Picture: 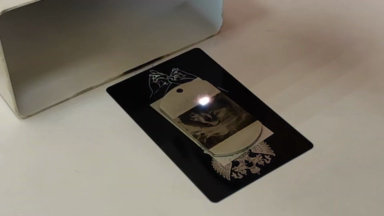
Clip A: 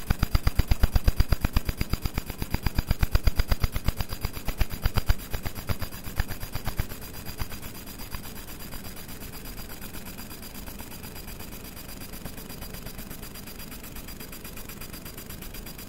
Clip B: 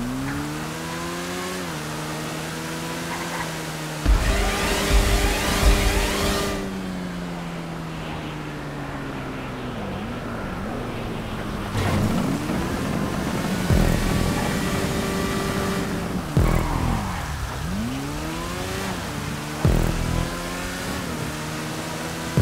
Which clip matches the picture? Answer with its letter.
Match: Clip A